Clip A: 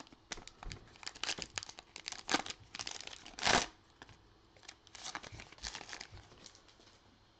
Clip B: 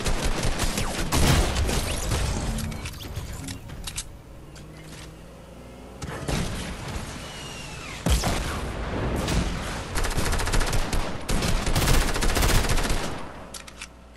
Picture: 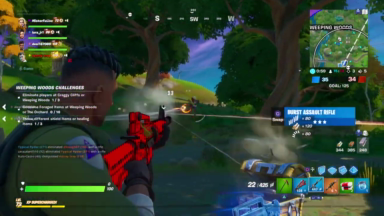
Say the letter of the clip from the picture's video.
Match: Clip B